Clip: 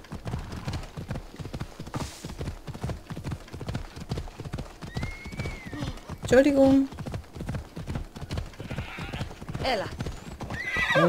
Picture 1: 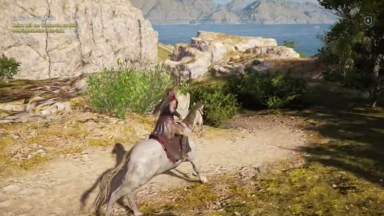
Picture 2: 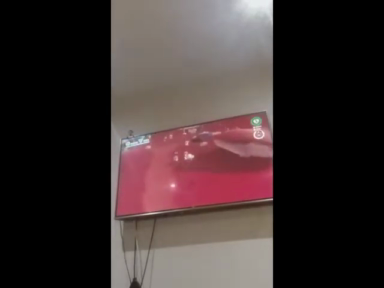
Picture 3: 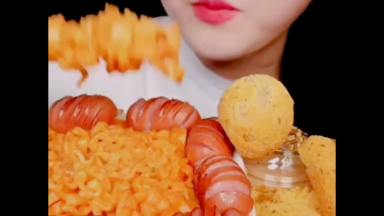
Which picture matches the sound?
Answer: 1